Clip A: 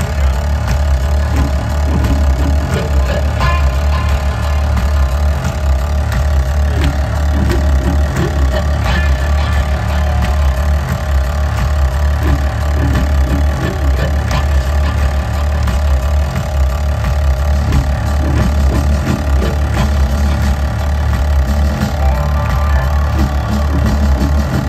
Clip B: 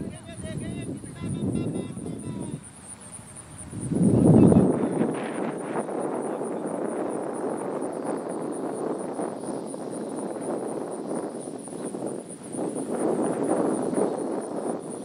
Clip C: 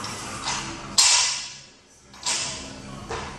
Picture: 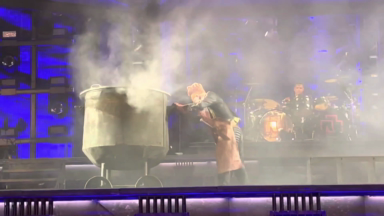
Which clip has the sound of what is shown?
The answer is A